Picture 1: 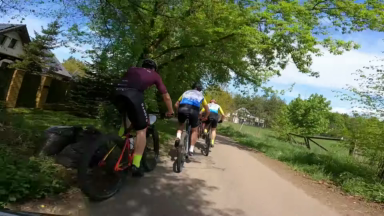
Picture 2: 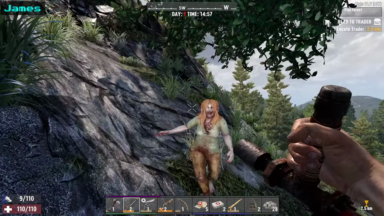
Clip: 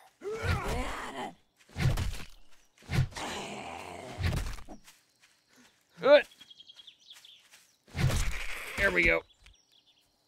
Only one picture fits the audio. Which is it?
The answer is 2